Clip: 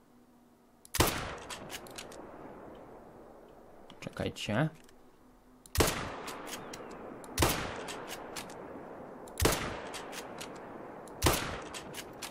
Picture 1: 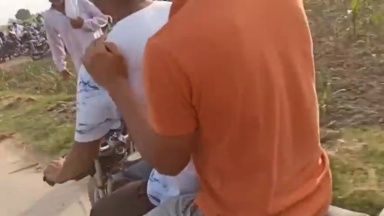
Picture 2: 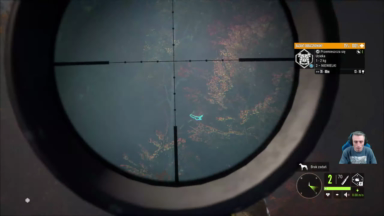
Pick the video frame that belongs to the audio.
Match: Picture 2